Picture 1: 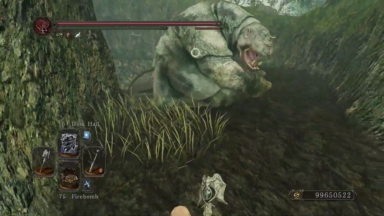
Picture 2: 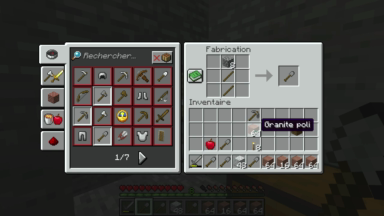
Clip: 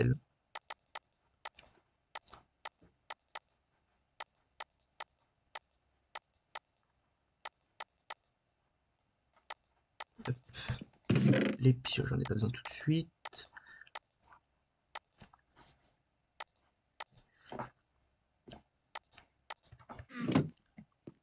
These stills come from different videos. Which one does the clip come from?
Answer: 2